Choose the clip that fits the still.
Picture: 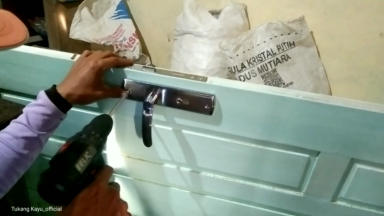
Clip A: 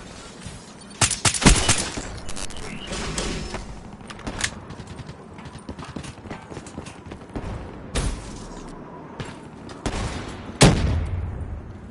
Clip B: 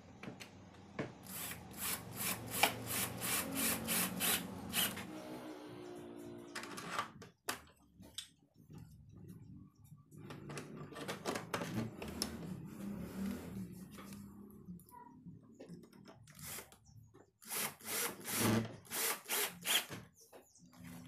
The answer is B